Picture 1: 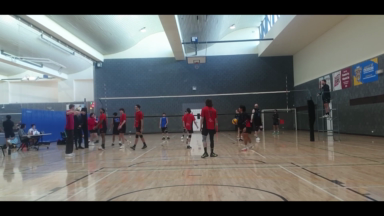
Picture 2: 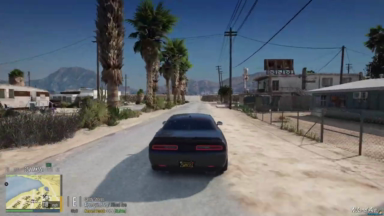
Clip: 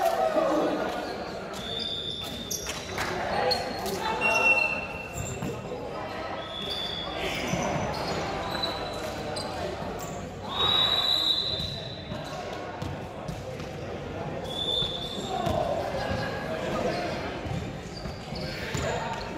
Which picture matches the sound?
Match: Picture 1